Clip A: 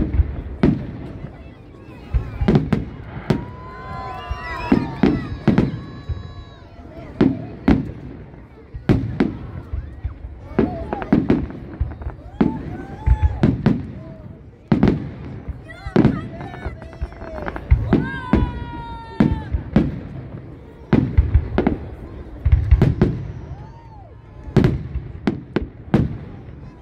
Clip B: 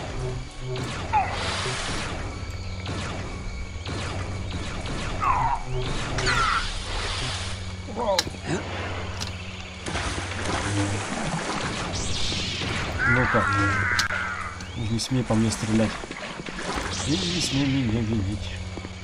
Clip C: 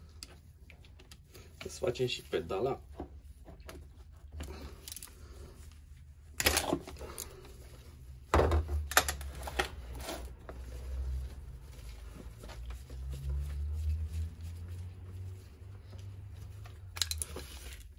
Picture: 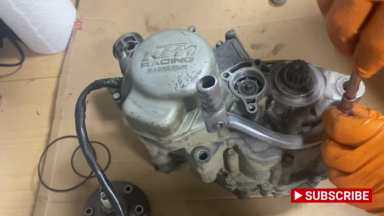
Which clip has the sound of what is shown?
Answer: C